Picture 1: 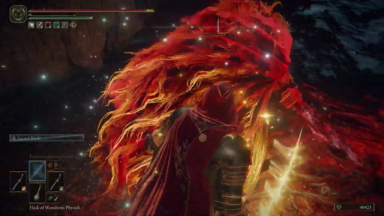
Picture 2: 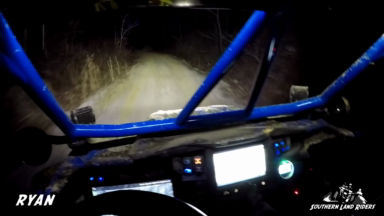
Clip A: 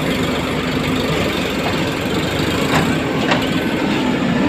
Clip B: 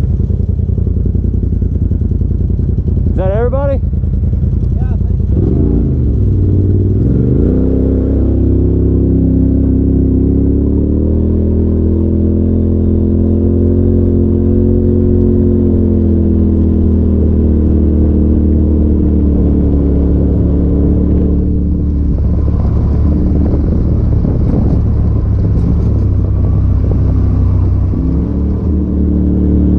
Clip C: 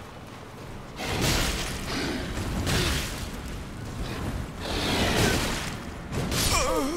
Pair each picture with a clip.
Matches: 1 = C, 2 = B